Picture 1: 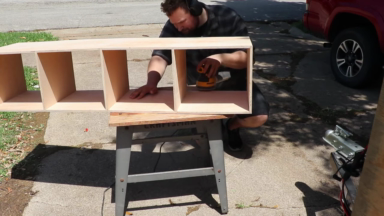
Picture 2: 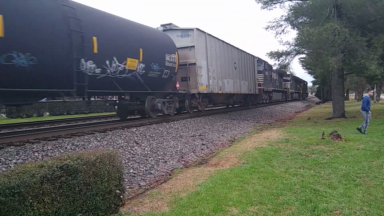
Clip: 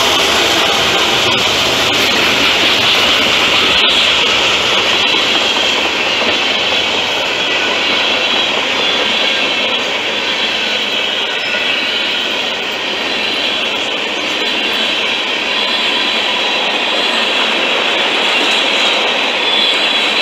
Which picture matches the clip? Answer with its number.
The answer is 2